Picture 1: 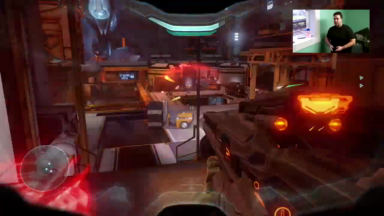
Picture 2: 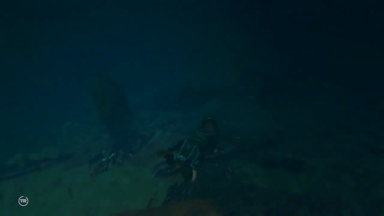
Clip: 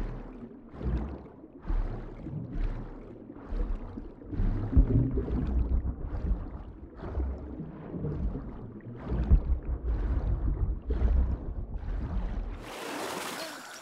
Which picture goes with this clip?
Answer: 2